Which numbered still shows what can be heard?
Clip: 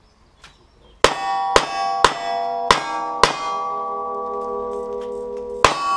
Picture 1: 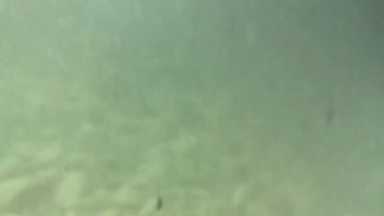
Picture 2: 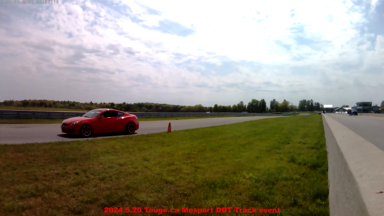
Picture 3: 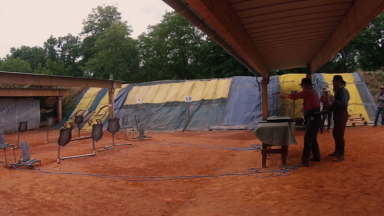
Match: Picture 3